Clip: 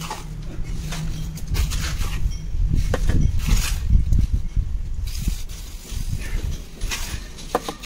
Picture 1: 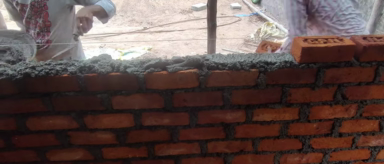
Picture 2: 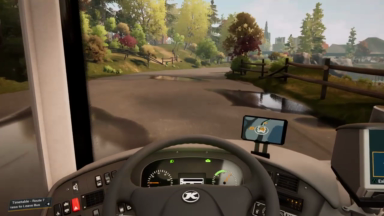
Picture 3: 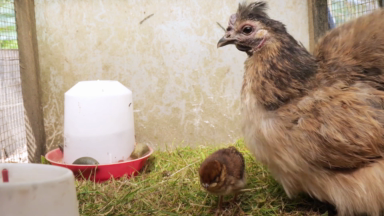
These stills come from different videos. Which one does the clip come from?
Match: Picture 1